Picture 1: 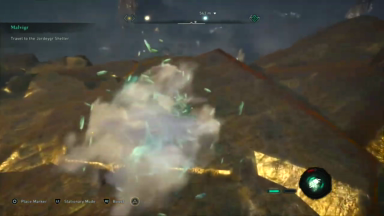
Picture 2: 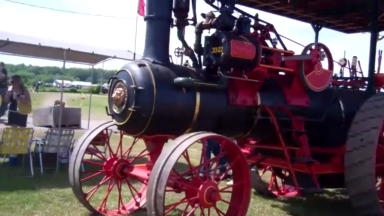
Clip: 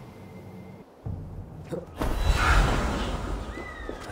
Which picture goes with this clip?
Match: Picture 1